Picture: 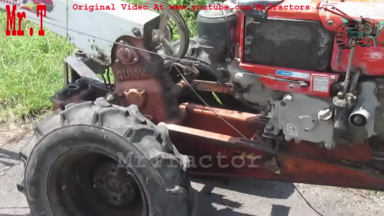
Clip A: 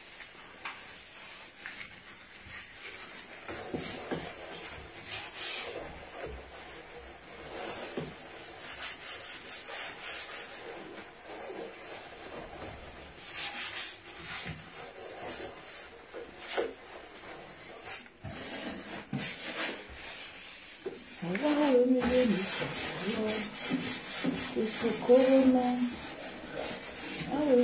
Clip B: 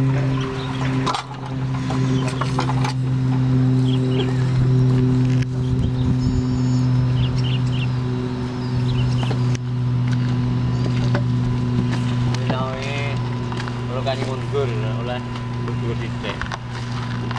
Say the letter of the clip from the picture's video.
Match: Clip B